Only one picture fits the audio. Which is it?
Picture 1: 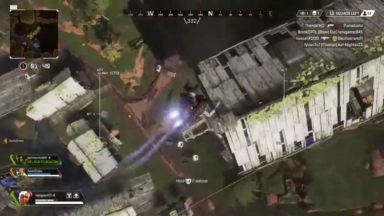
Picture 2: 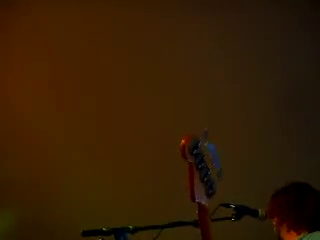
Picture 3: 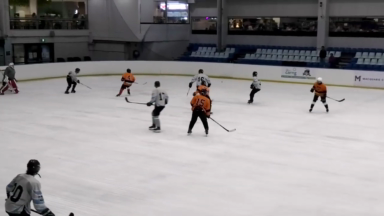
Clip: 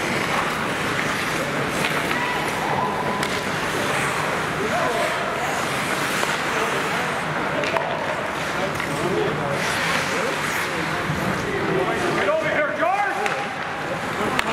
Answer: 3